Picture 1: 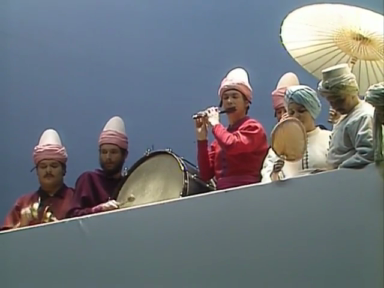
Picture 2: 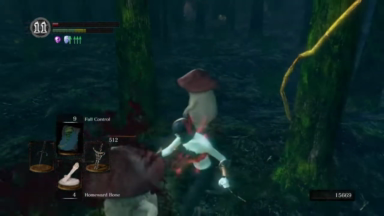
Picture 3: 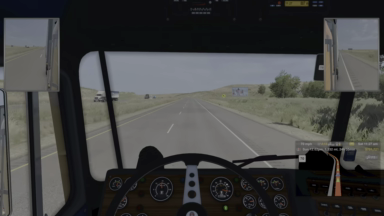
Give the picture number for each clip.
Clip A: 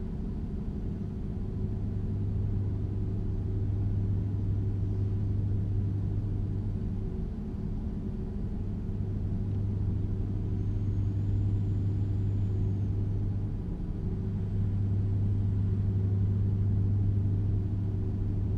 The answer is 3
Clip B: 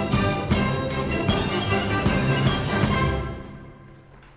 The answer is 1